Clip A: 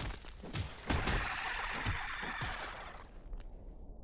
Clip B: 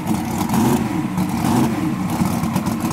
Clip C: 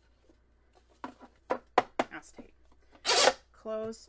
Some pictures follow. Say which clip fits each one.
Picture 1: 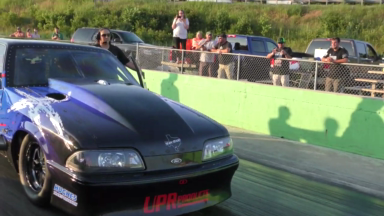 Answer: B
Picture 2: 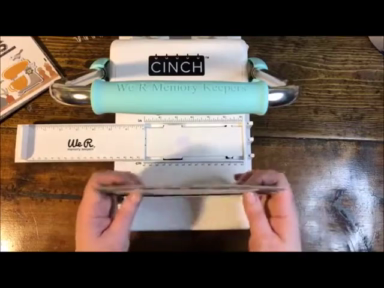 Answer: C